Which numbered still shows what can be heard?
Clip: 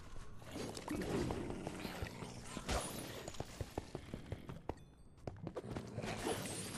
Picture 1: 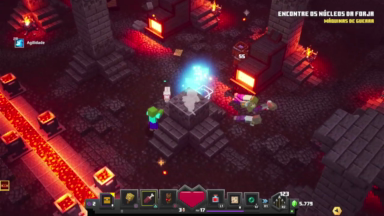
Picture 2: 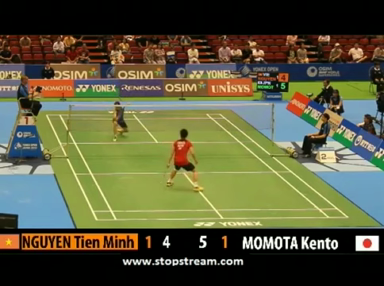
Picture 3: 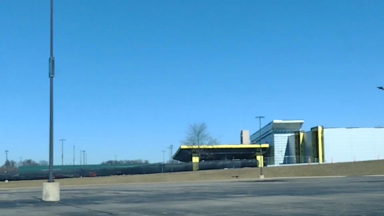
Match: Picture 1